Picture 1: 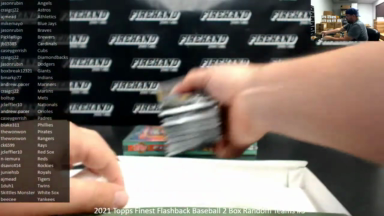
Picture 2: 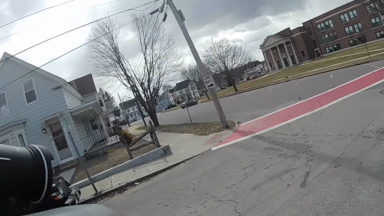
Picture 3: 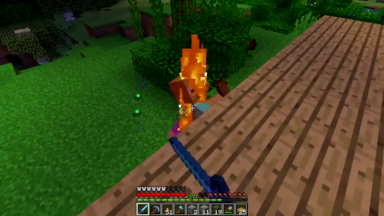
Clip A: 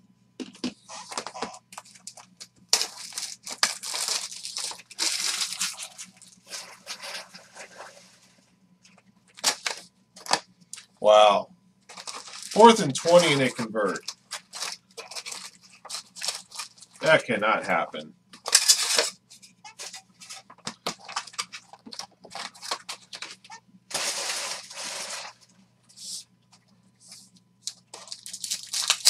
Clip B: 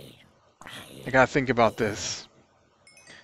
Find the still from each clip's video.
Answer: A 1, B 3